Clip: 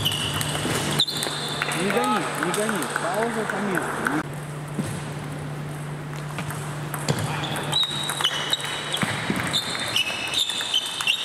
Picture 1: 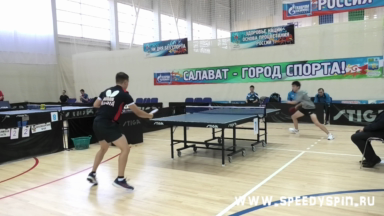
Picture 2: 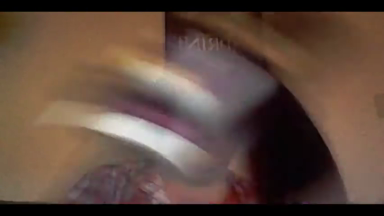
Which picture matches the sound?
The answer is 1